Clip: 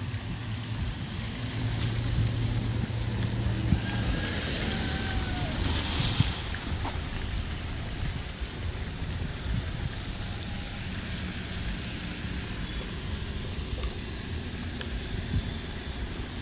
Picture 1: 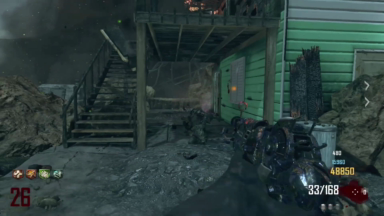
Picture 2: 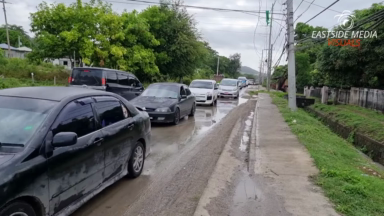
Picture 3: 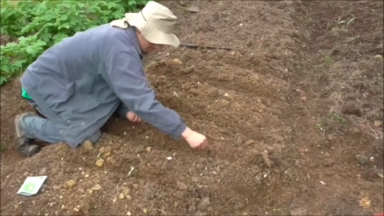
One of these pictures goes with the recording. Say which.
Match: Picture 2